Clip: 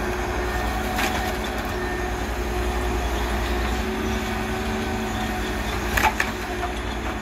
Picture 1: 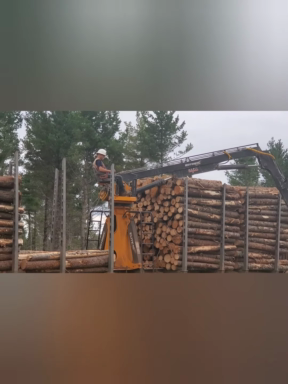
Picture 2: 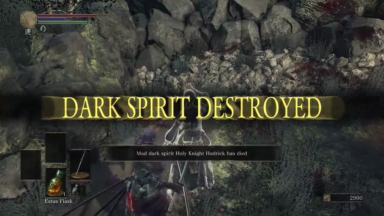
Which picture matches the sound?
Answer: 1